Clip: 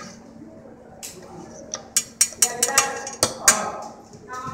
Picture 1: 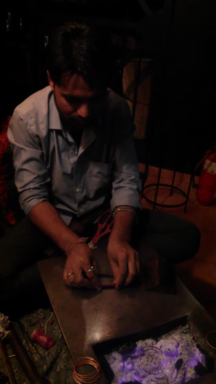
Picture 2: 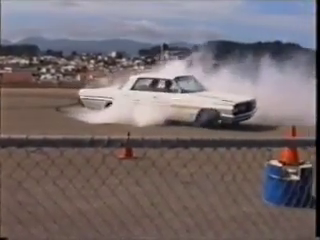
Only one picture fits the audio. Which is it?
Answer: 1